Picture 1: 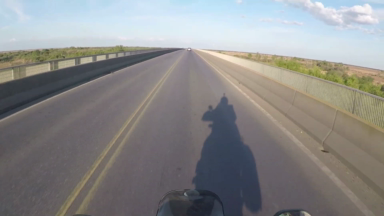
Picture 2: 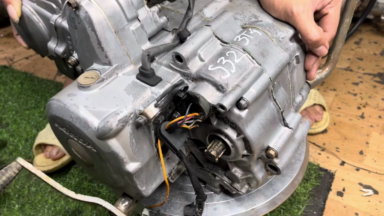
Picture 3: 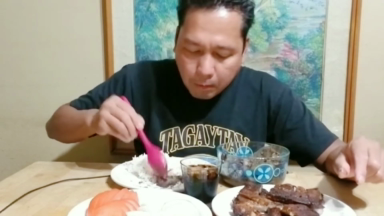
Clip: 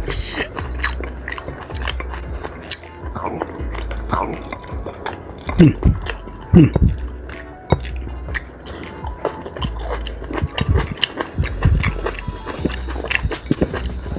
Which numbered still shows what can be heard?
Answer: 3